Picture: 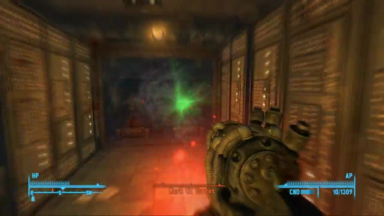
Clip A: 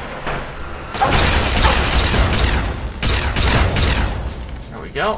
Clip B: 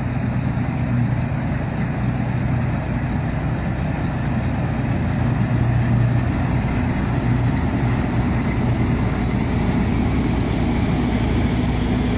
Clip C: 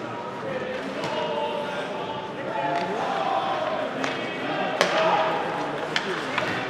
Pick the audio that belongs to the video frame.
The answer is A